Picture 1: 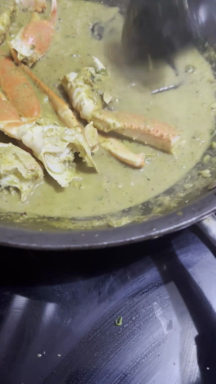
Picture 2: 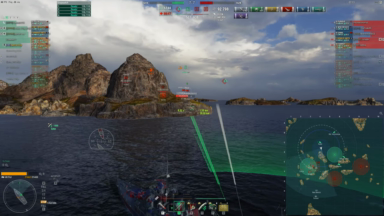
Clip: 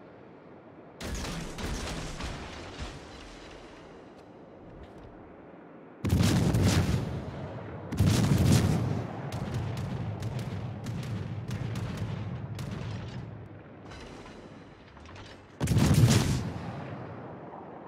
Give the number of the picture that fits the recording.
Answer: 2